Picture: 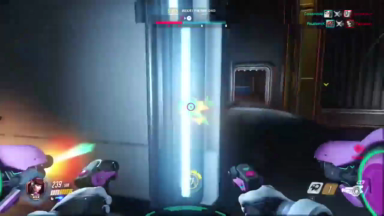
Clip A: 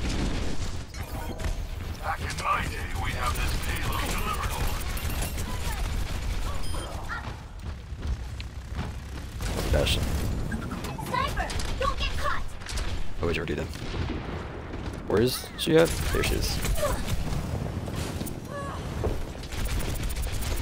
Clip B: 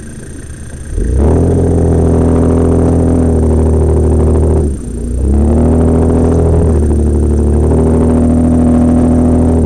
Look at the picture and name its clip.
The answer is A